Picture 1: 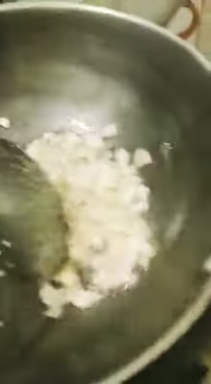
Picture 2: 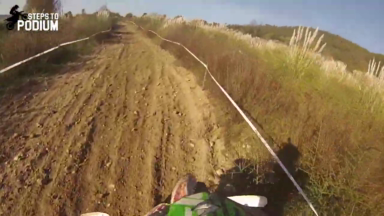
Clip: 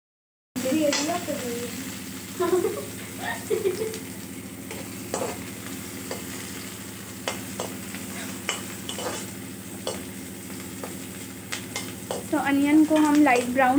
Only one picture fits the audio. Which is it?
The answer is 1